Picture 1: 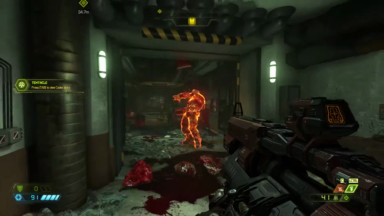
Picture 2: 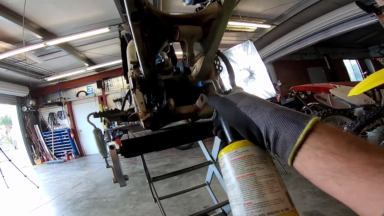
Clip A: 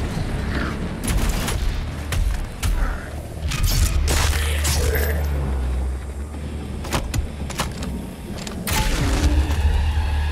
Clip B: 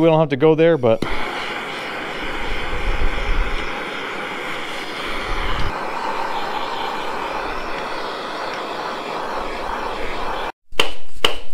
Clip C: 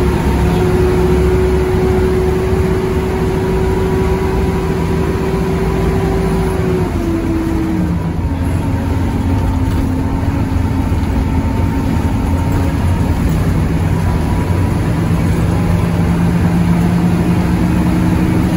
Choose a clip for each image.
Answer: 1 A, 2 B